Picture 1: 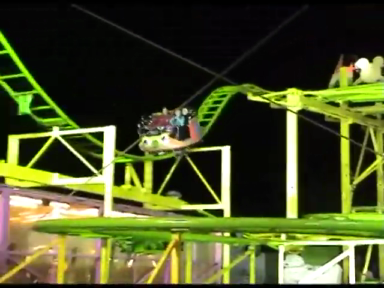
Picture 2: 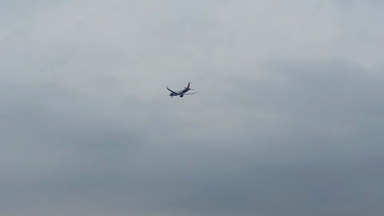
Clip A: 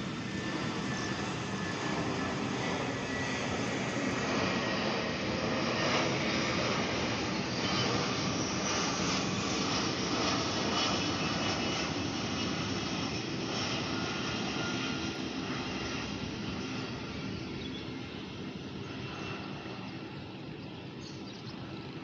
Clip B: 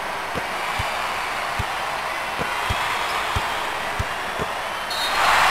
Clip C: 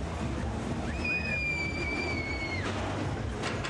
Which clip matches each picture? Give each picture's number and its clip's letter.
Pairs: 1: C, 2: A